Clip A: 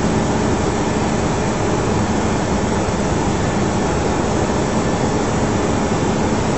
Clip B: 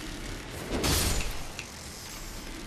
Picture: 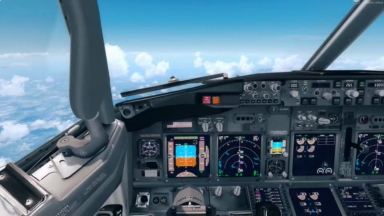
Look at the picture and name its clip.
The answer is A